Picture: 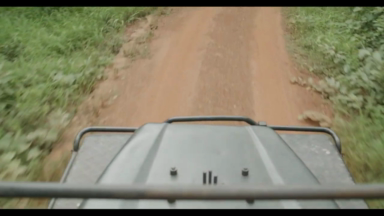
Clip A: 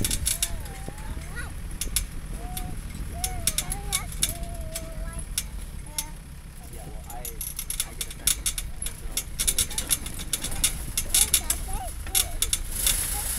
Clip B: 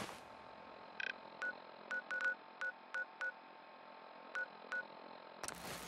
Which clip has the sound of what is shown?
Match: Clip A